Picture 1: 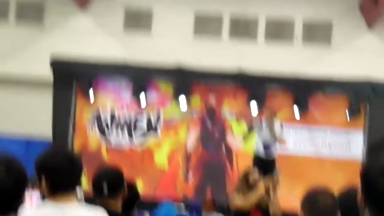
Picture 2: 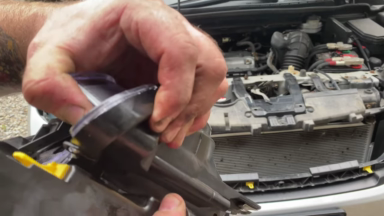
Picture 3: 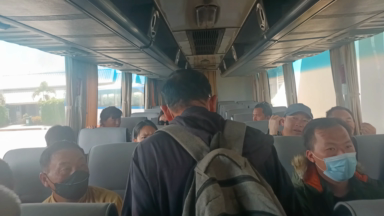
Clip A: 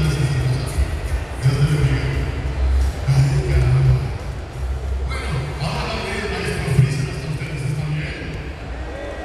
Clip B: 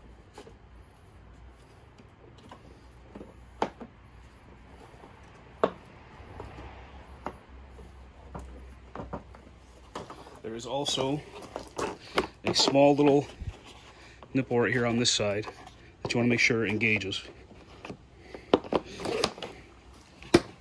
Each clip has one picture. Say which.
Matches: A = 1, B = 2